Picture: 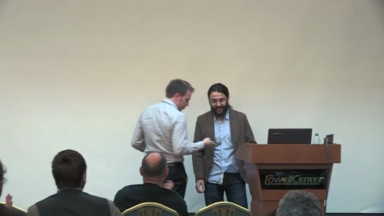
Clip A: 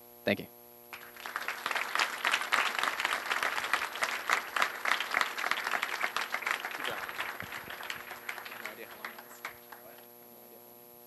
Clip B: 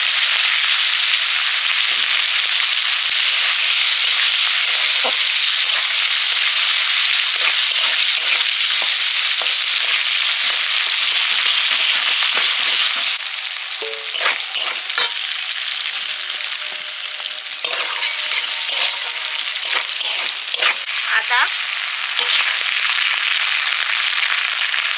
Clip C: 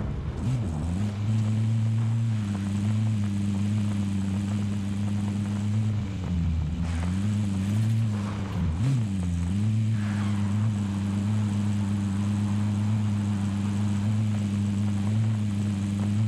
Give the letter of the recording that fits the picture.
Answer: A